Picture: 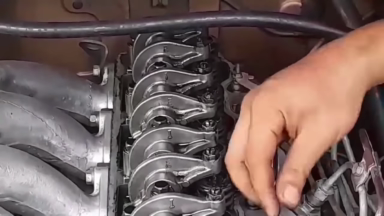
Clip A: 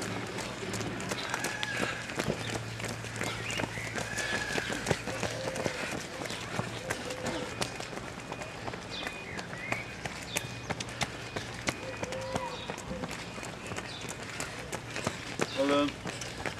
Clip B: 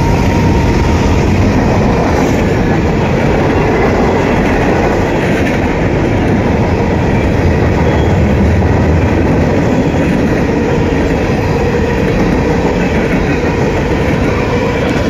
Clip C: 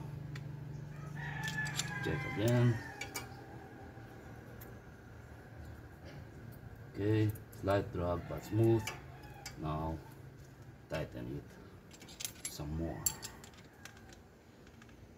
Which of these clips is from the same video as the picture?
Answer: C